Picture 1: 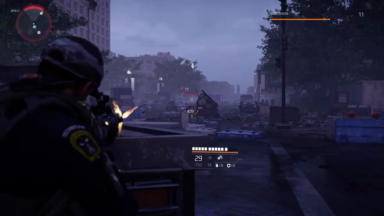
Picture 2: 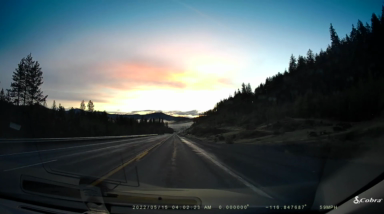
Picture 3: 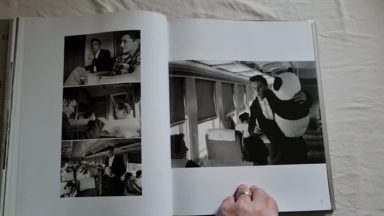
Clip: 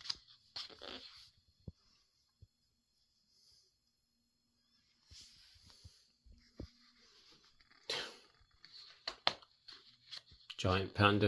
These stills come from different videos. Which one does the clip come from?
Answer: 3